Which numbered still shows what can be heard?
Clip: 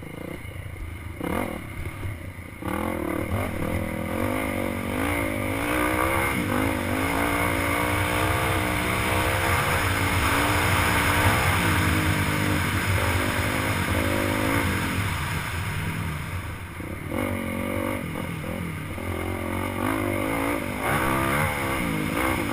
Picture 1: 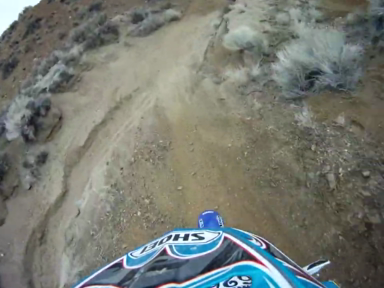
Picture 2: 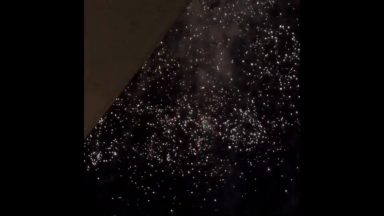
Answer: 1